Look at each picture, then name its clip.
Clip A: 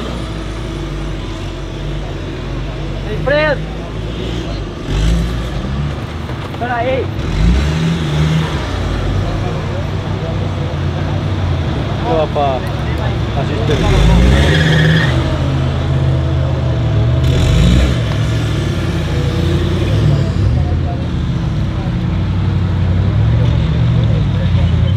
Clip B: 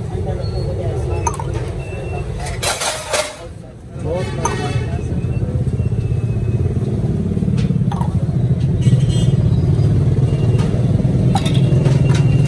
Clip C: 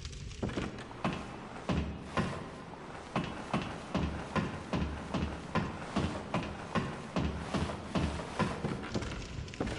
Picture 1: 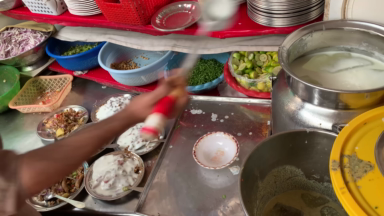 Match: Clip B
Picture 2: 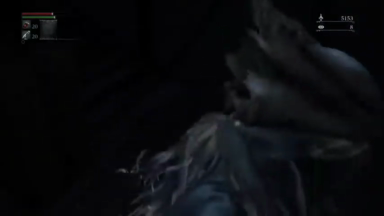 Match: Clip C